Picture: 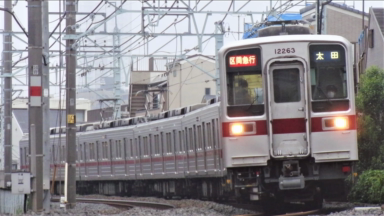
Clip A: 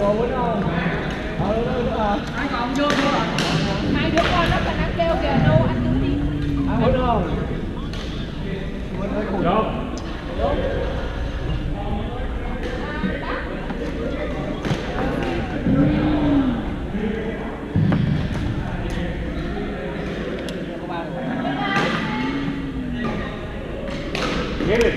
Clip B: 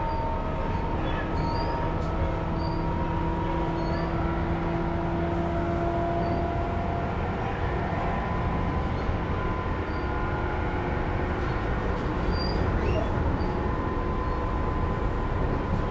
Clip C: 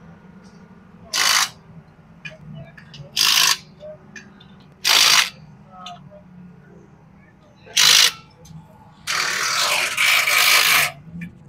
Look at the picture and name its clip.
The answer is B